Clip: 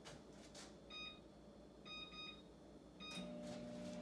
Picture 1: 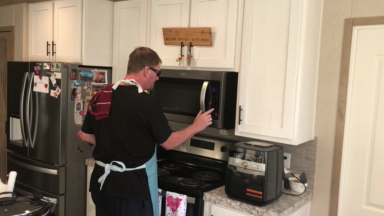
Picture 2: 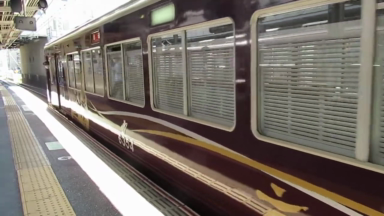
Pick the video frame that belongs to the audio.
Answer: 1